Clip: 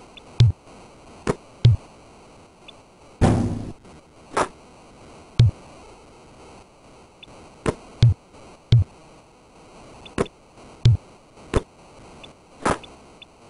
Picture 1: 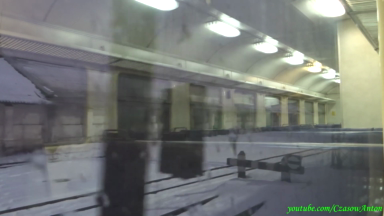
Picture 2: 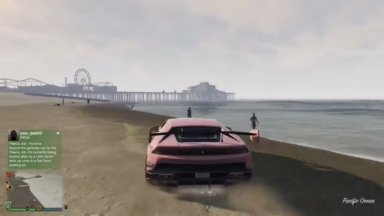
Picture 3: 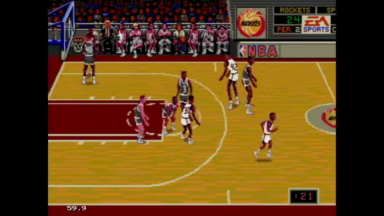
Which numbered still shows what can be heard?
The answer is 3